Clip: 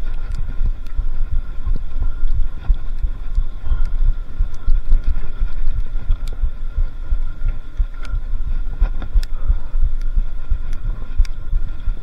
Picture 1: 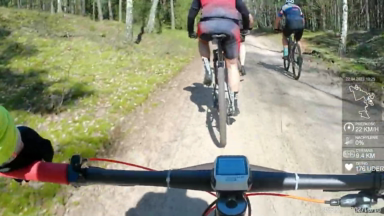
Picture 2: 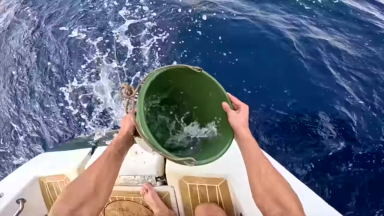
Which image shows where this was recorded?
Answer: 1